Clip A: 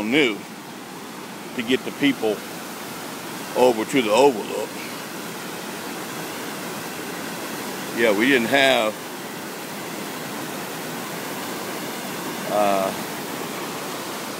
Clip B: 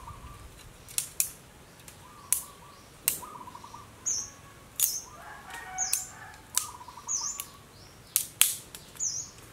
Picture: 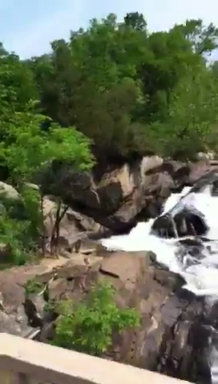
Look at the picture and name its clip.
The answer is A